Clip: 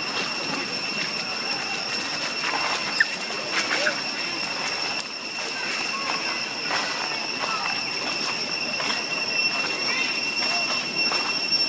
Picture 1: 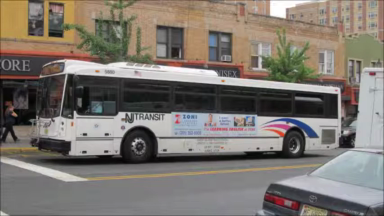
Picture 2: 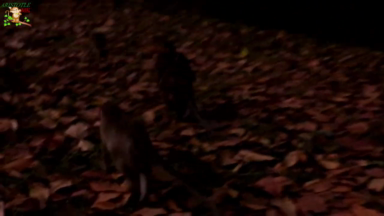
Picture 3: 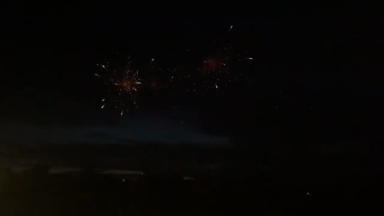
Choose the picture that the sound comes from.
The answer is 2